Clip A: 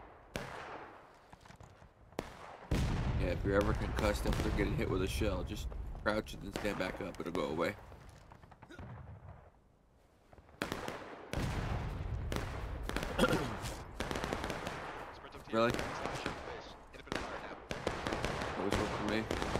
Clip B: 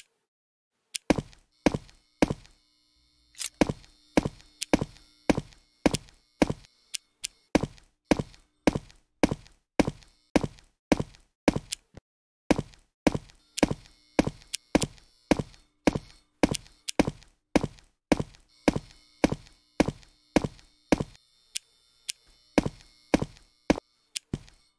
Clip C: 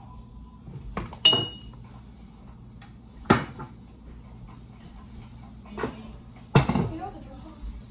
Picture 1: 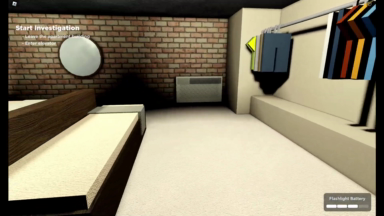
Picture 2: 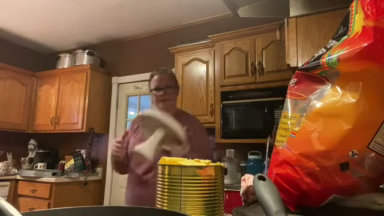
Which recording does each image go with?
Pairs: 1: B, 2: C